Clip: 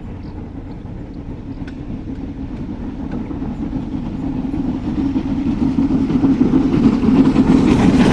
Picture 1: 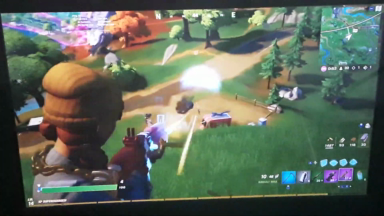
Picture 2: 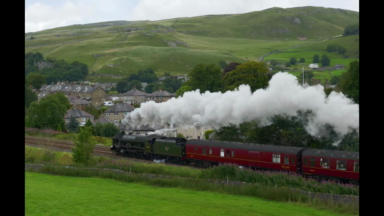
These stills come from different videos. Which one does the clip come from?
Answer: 2